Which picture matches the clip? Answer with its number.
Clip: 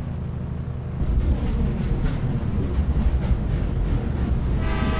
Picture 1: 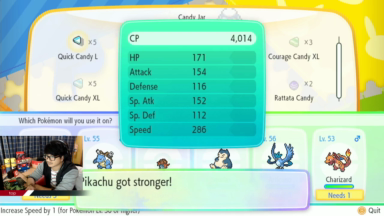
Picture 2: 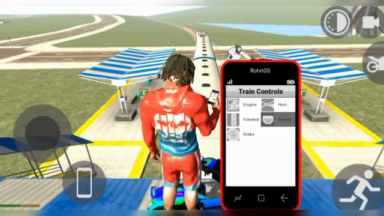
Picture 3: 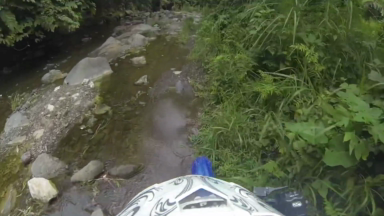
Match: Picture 2